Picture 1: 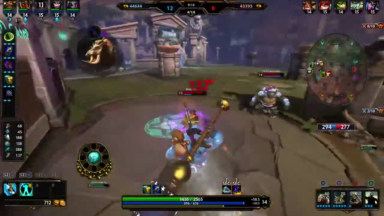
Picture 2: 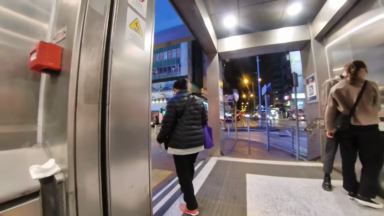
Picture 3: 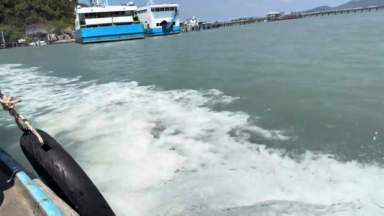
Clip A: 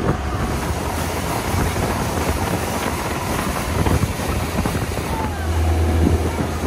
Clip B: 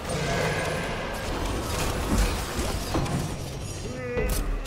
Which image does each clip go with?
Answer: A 3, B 1